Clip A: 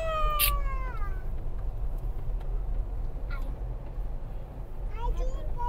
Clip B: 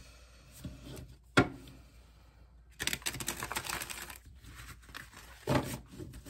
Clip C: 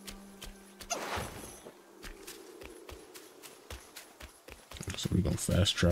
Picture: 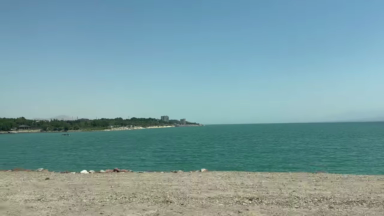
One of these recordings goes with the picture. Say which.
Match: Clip A